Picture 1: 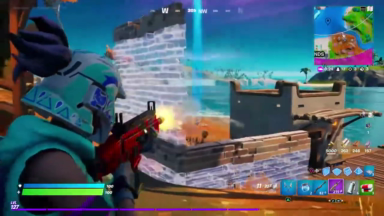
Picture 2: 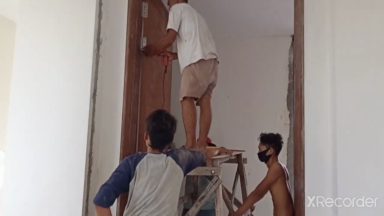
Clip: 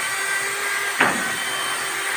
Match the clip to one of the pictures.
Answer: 2